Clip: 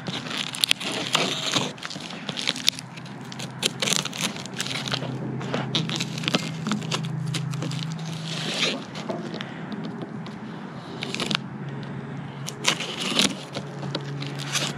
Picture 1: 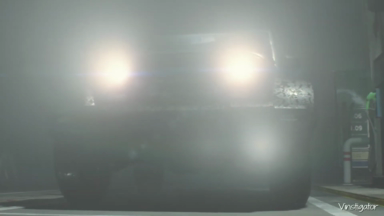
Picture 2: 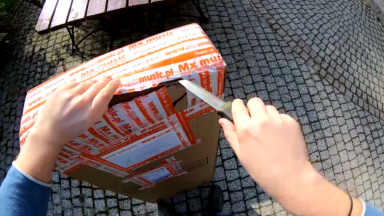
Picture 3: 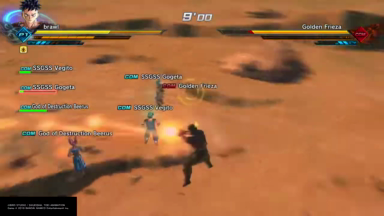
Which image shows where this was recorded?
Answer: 2